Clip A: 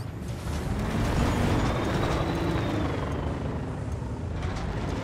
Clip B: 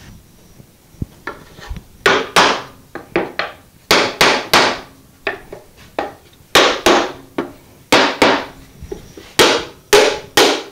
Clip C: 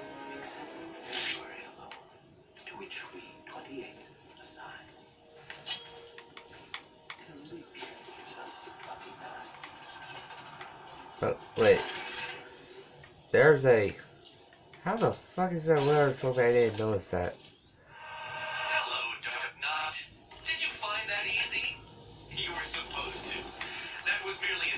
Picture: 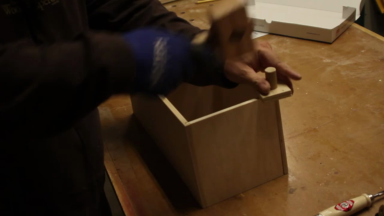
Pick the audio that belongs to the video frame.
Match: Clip B